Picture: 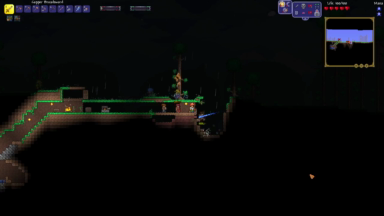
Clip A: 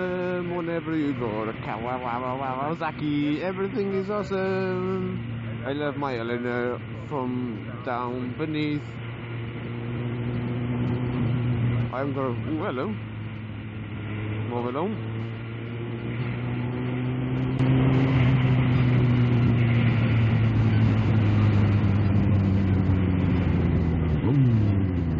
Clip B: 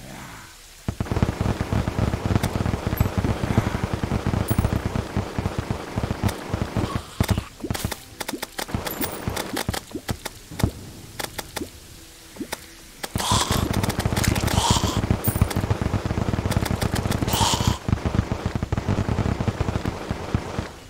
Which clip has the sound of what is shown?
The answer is B